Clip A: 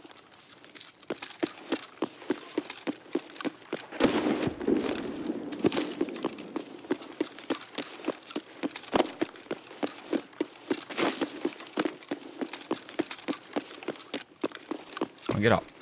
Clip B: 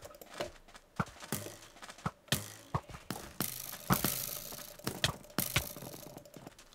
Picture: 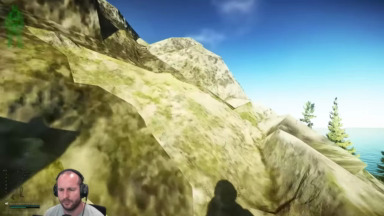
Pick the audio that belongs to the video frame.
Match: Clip A